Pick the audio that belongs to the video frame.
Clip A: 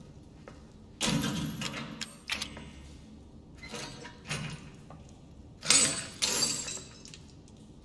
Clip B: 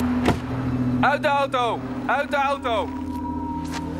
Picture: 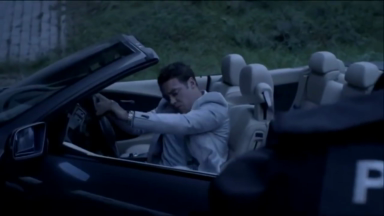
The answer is B